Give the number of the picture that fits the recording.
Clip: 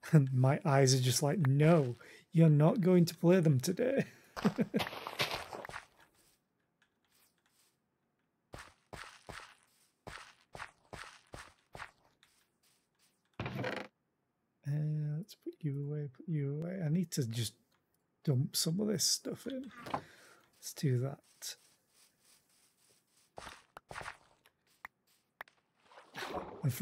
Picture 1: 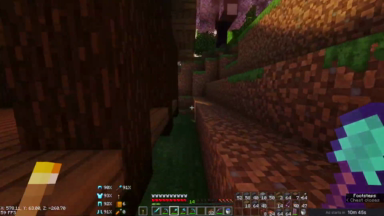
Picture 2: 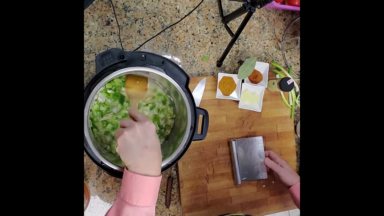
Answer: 1